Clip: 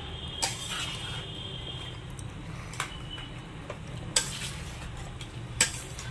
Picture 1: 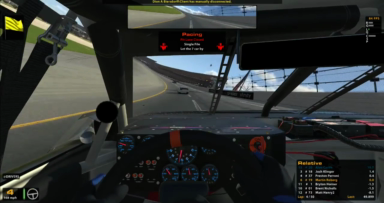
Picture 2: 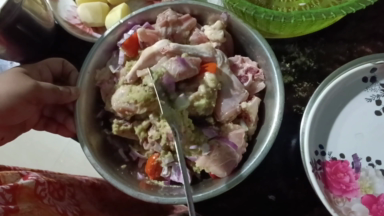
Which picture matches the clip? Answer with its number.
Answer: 2